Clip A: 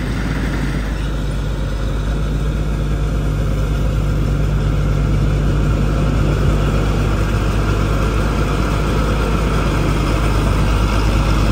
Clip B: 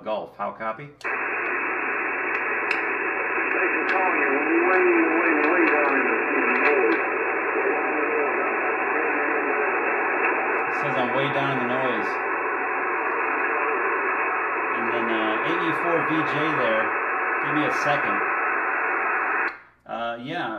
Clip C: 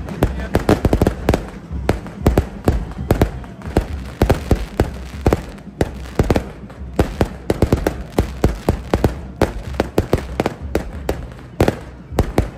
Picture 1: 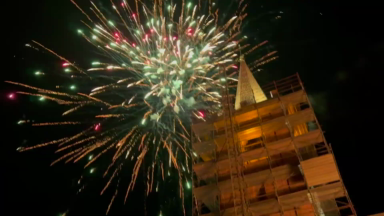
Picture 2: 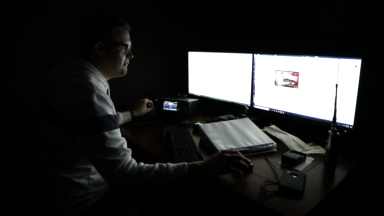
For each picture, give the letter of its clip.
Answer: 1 C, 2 B